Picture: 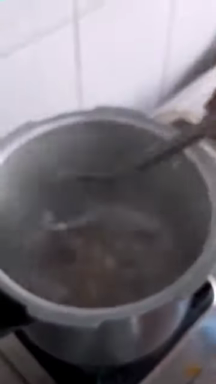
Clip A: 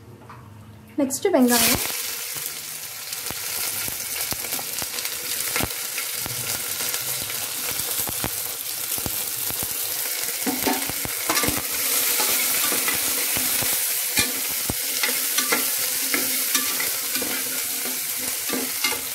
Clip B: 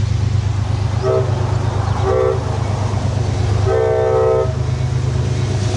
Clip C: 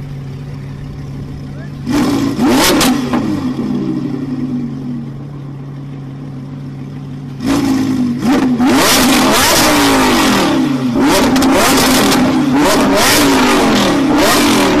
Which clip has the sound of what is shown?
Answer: A